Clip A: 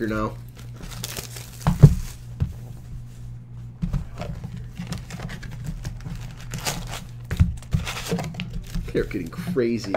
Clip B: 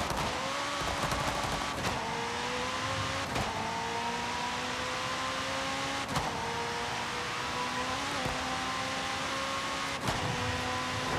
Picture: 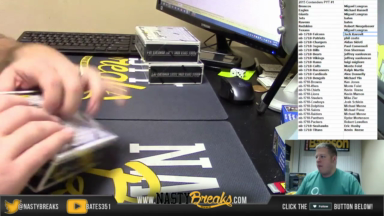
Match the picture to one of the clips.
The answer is A